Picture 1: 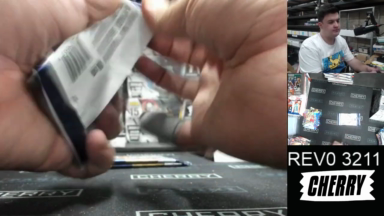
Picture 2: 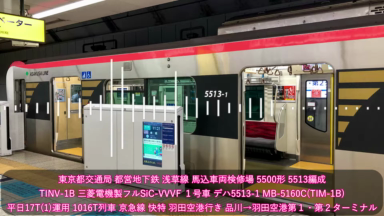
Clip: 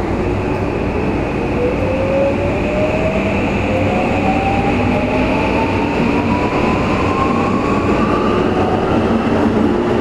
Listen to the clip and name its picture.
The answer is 2